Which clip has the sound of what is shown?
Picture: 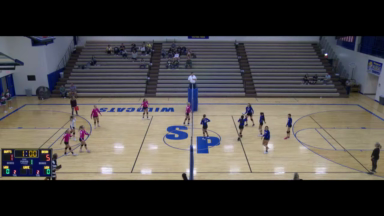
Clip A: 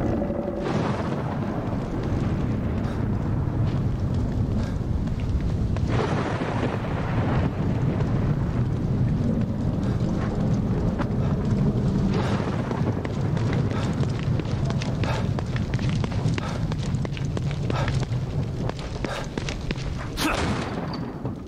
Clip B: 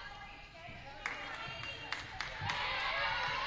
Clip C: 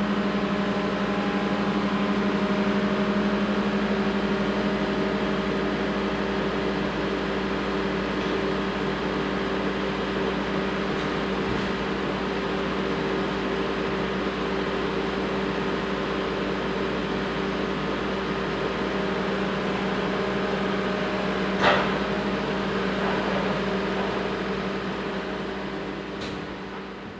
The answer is B